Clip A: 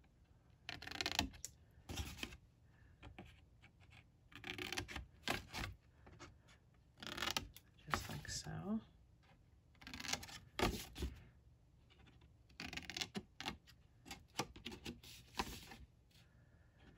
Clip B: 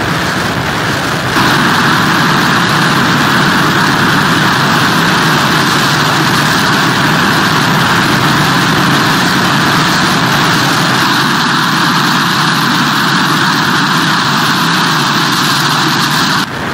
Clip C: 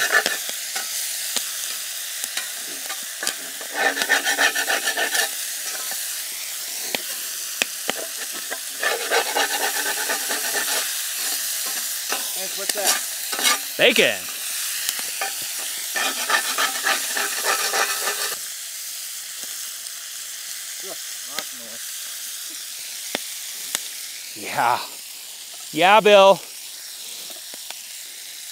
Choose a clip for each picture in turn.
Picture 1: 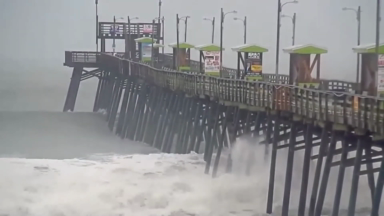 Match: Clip B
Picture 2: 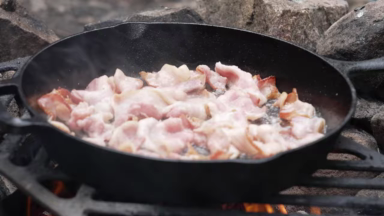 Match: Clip C